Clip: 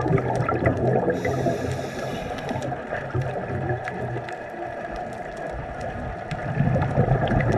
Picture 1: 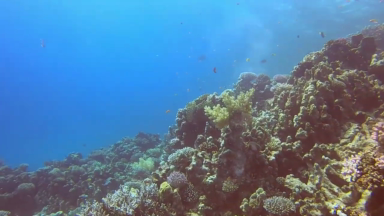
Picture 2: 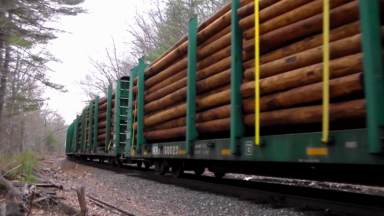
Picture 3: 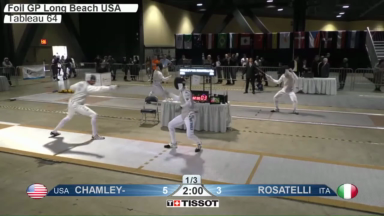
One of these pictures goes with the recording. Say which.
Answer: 1